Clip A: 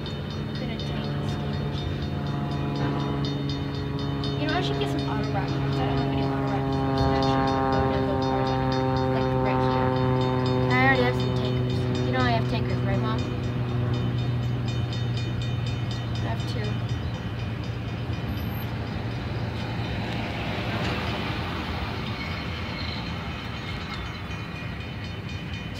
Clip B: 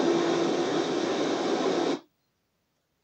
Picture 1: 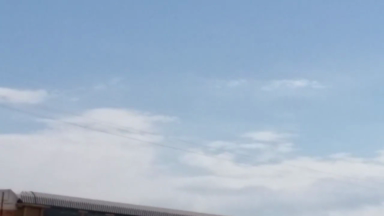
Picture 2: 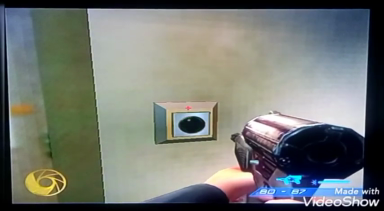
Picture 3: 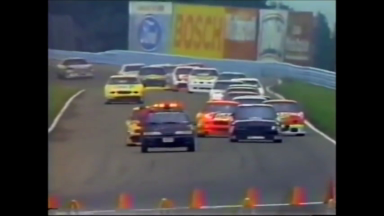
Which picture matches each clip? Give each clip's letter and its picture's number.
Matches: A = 1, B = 2